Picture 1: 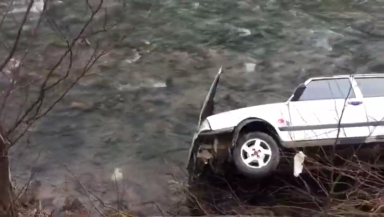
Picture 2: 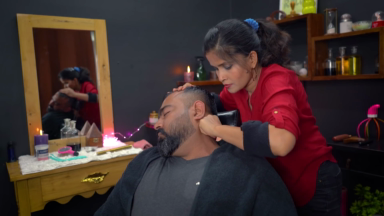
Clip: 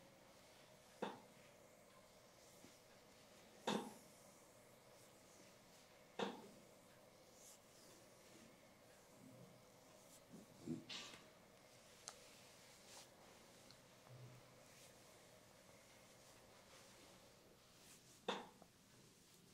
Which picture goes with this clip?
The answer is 2